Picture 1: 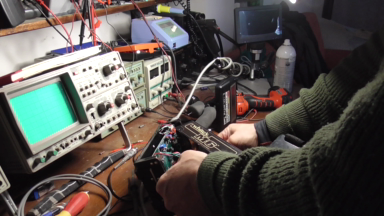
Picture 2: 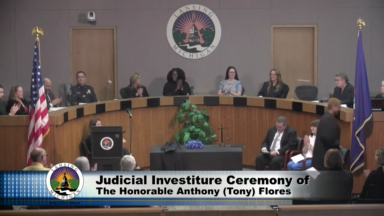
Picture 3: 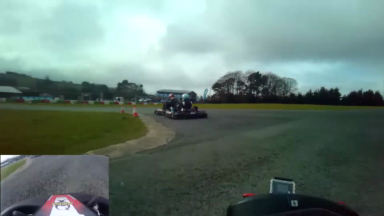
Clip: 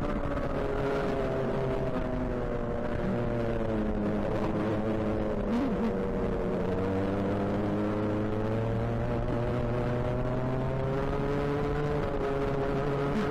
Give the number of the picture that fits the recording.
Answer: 3